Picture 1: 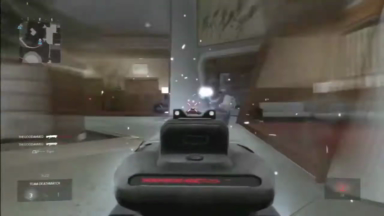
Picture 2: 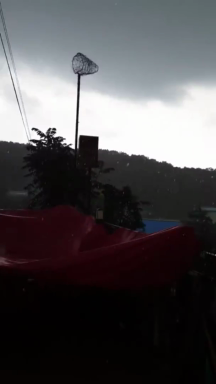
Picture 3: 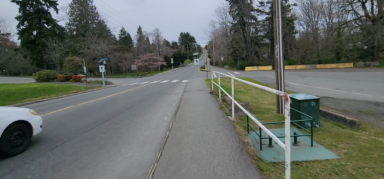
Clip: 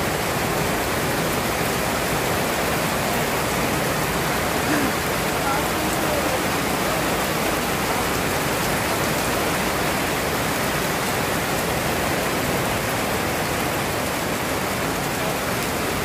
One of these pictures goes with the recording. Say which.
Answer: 2